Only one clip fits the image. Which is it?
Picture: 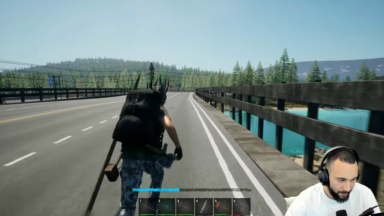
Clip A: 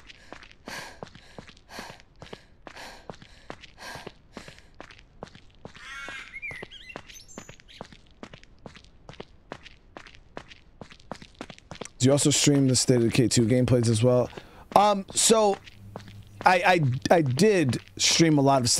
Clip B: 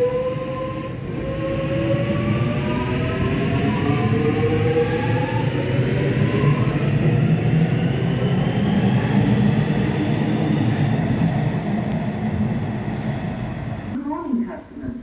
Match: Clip A